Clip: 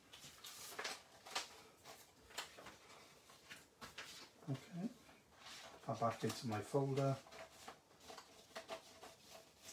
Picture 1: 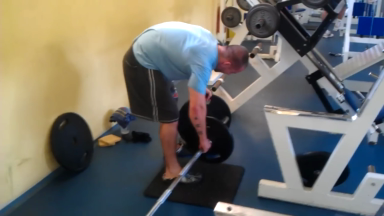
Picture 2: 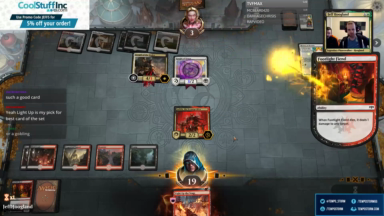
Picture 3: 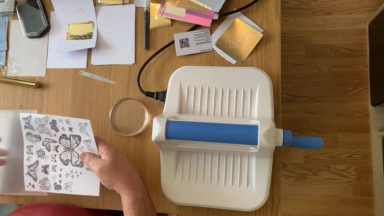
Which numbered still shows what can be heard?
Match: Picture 3